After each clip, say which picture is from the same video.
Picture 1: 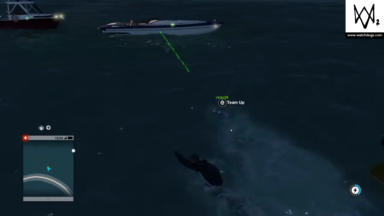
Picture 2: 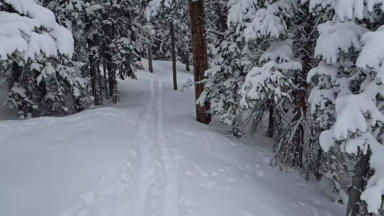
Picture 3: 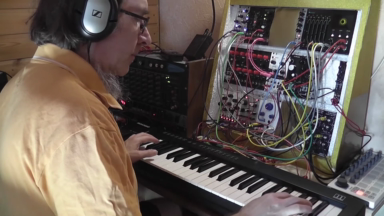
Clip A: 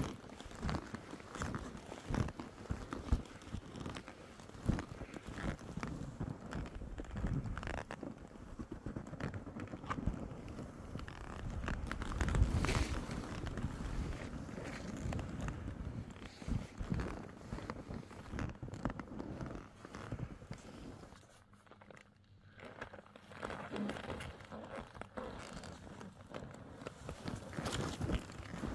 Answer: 2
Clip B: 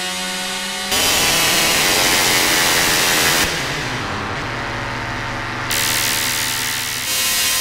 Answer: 3